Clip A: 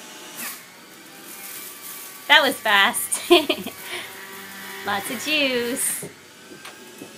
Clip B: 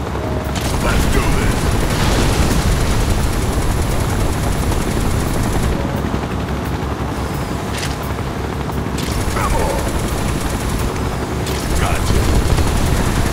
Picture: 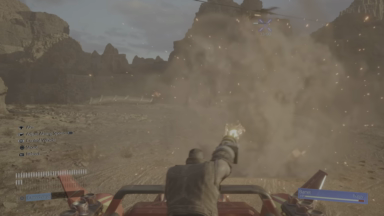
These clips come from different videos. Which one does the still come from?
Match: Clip B